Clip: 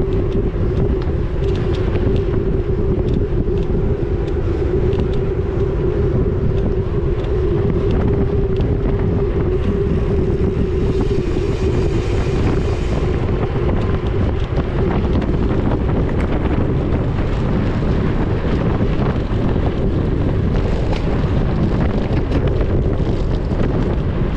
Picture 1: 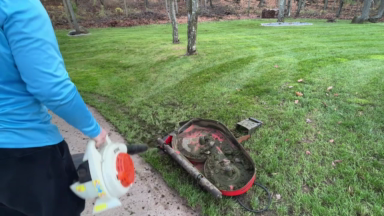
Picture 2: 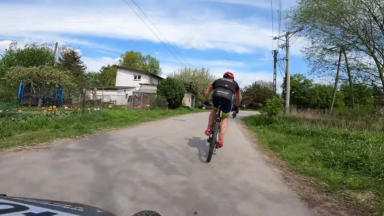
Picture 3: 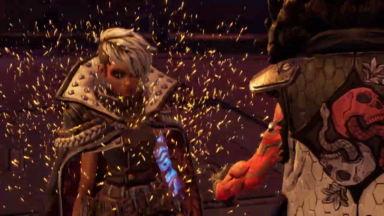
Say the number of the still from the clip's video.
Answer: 2